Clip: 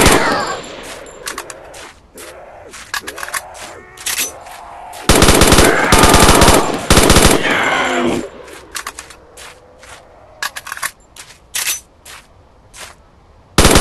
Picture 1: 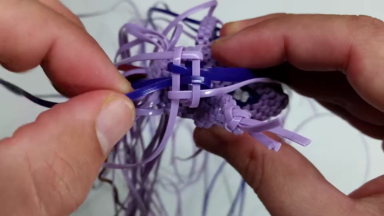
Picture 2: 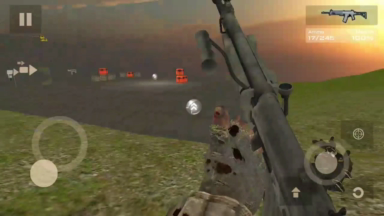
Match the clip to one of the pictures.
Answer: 2